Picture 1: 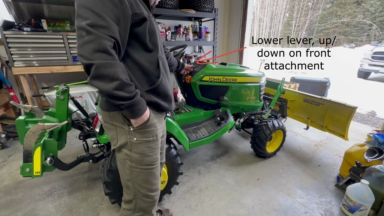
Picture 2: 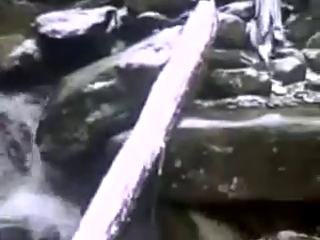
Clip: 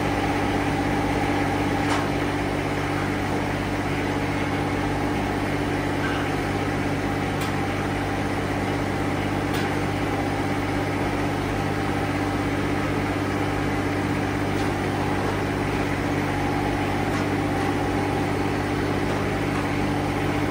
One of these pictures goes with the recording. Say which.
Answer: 1